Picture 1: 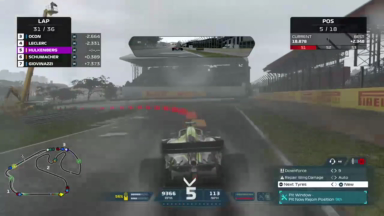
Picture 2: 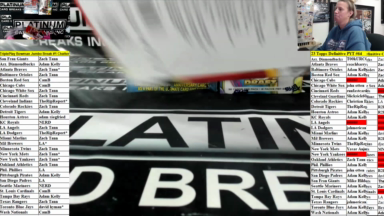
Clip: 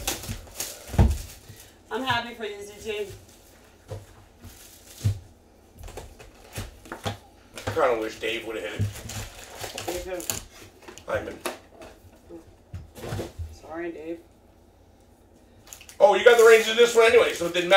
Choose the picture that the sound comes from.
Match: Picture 2